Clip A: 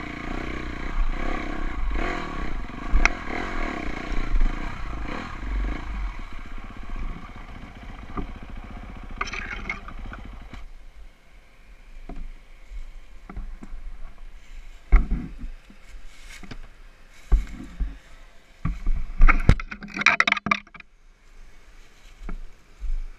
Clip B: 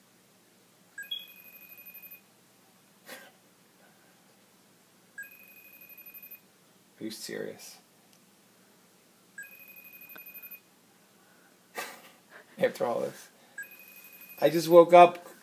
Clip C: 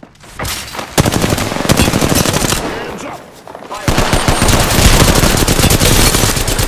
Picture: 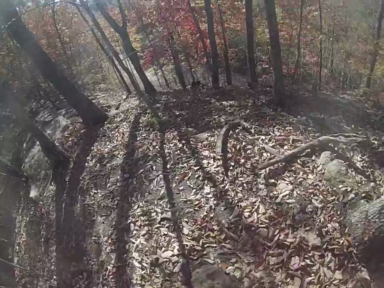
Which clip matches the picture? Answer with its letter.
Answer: A